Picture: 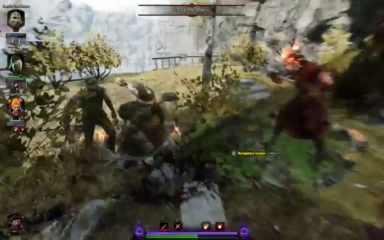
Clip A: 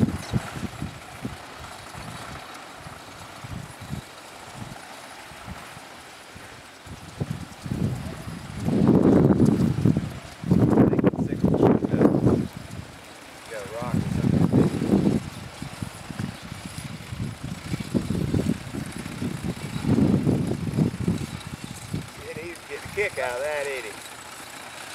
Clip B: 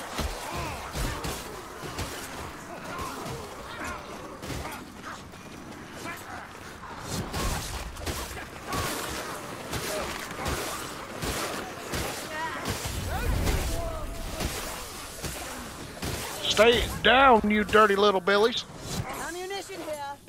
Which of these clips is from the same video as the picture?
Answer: B